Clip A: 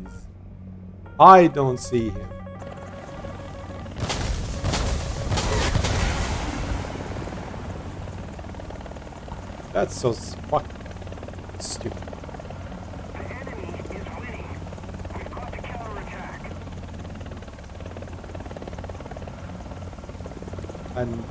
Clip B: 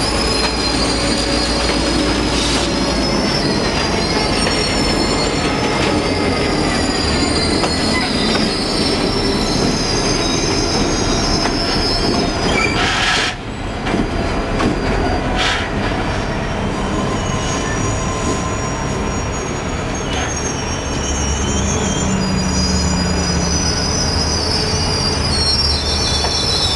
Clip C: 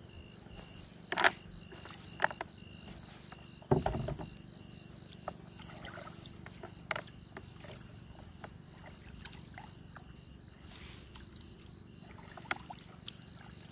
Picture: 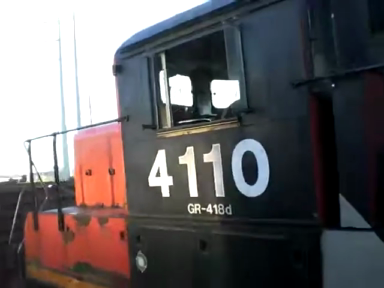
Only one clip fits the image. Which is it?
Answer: B